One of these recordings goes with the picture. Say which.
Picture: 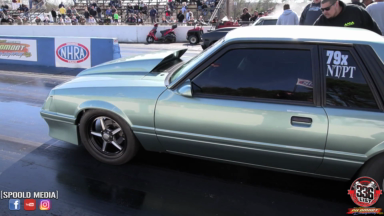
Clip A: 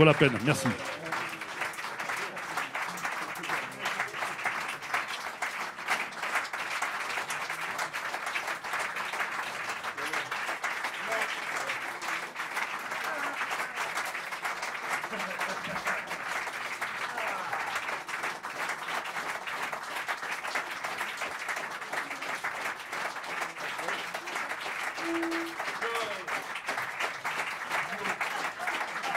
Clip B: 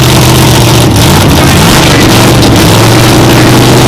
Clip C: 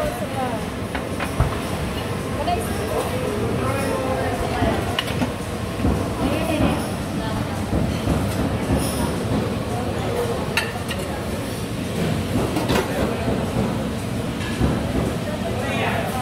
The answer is B